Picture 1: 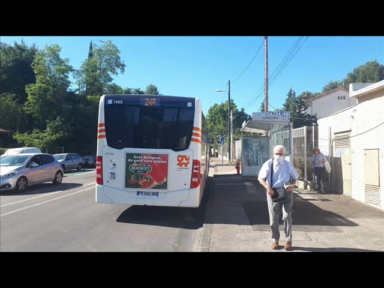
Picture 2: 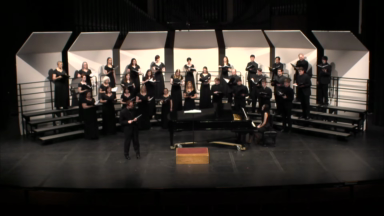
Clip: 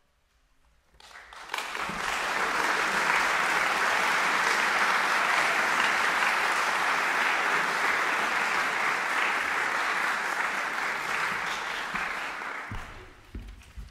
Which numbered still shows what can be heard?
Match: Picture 2